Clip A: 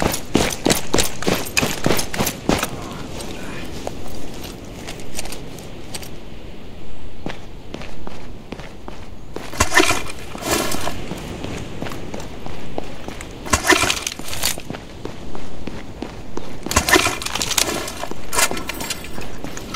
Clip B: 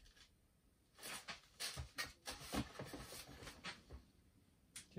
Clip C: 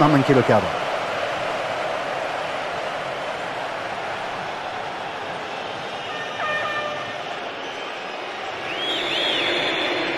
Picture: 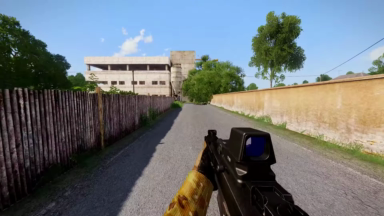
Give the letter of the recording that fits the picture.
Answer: A